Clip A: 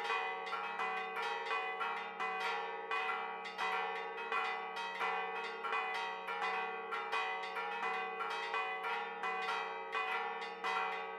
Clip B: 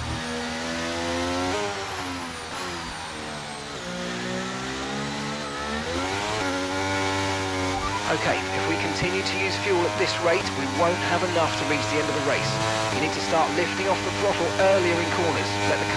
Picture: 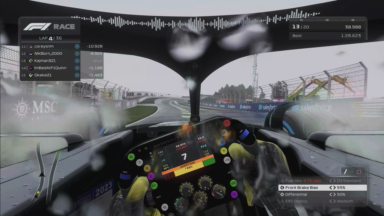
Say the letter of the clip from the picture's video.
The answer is B